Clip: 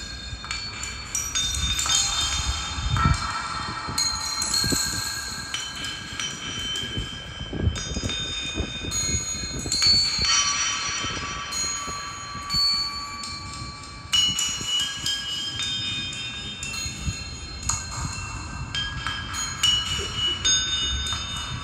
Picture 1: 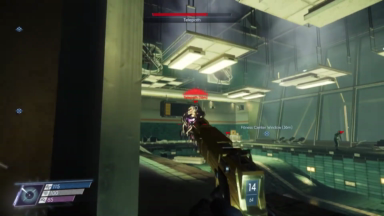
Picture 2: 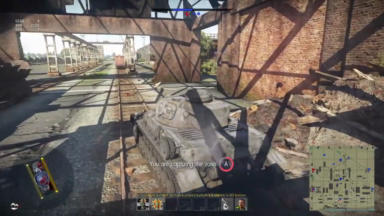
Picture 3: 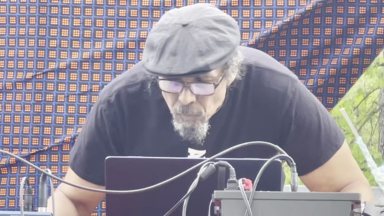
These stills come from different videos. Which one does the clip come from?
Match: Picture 3